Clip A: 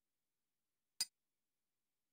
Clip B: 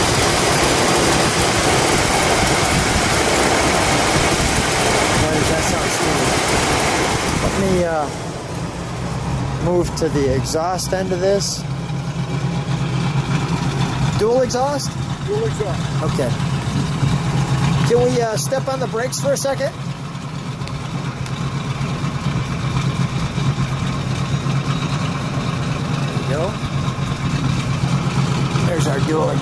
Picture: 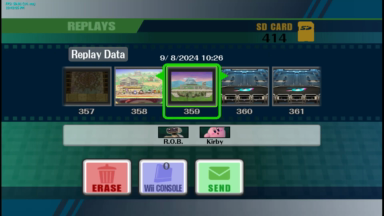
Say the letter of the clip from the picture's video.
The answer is A